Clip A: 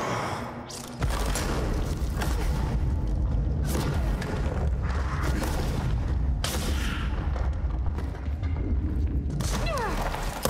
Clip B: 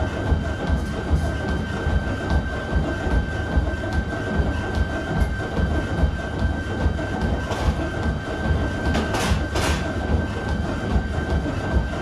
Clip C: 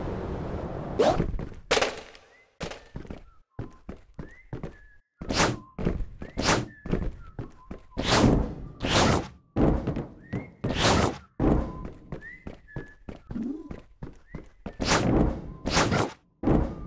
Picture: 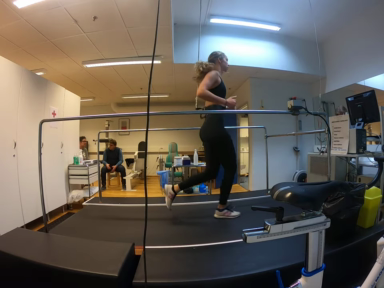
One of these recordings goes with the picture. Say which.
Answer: B